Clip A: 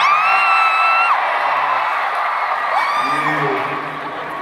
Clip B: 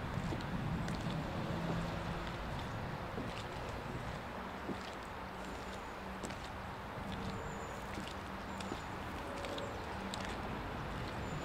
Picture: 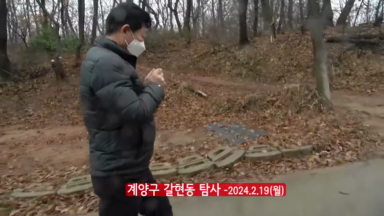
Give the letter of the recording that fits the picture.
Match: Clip B